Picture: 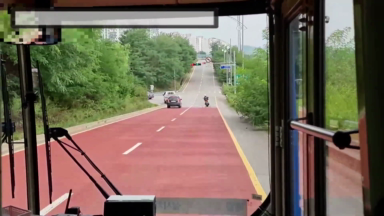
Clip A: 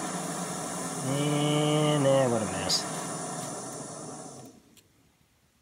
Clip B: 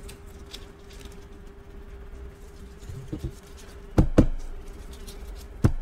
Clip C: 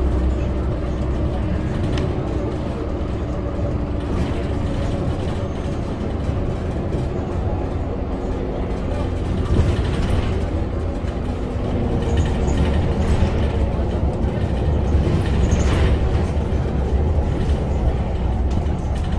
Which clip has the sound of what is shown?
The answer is C